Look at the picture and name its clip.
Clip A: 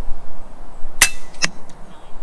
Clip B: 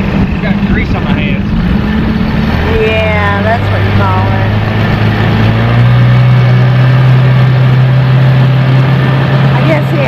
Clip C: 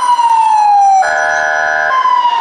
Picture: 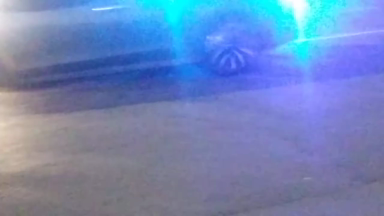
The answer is C